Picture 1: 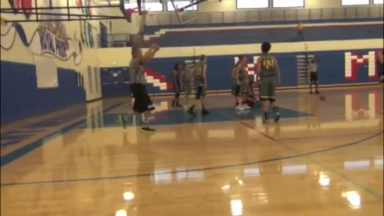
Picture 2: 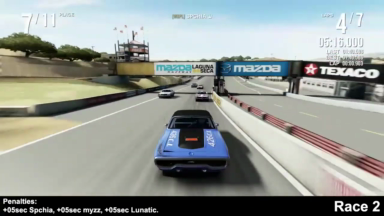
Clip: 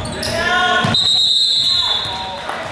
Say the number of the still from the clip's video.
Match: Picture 1